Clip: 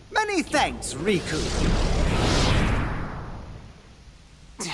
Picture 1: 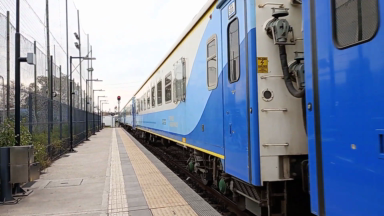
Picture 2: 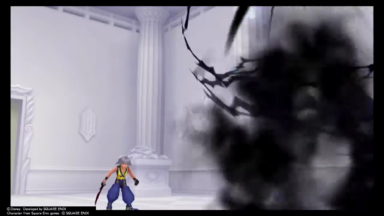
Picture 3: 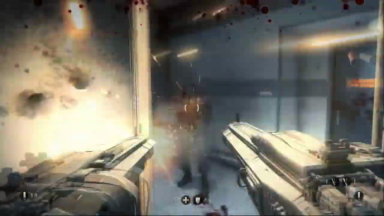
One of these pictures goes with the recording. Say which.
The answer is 2